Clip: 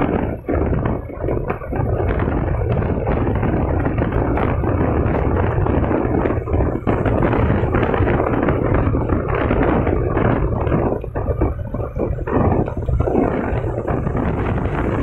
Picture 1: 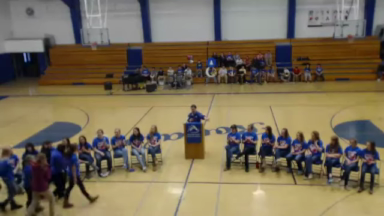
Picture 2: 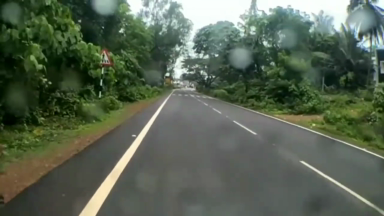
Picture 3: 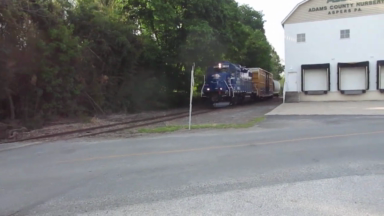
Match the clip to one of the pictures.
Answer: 2